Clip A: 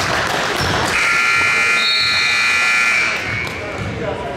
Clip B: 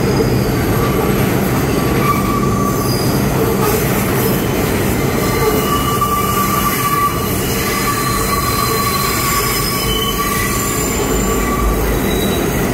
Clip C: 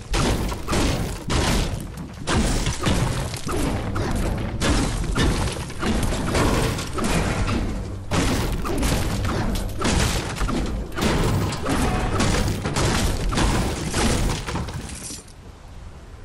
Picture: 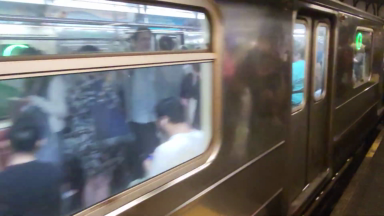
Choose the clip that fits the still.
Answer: B